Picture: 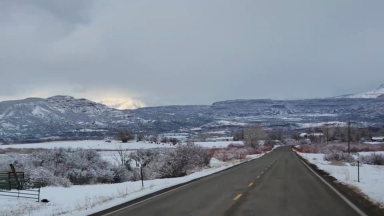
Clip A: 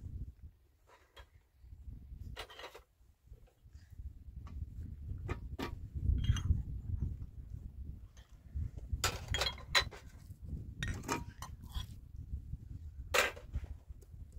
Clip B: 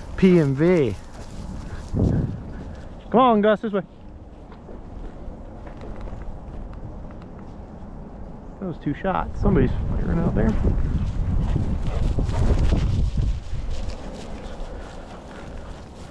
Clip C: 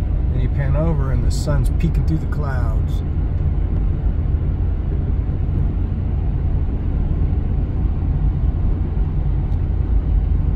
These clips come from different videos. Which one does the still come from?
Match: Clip C